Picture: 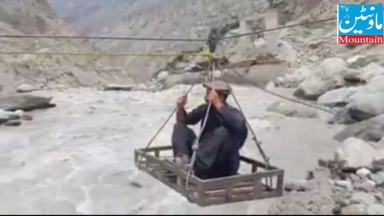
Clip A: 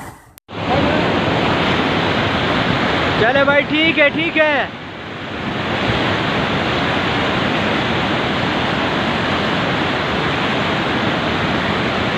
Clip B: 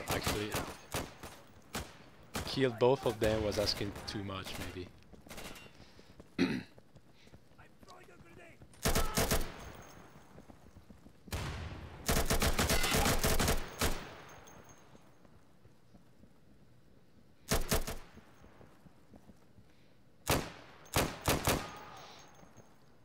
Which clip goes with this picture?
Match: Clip A